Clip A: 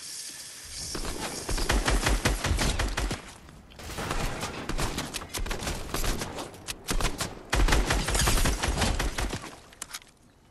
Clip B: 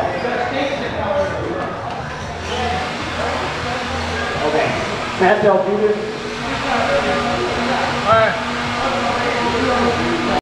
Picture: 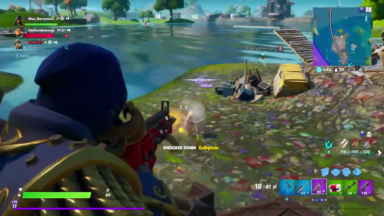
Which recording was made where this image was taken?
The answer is A